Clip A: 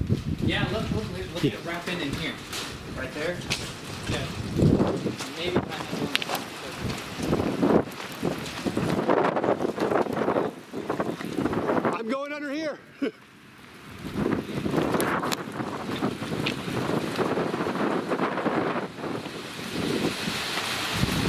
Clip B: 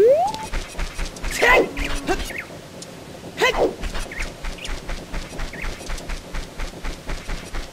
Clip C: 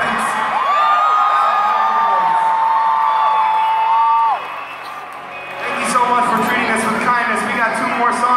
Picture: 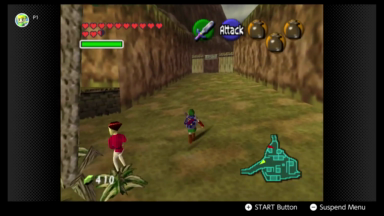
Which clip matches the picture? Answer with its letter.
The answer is B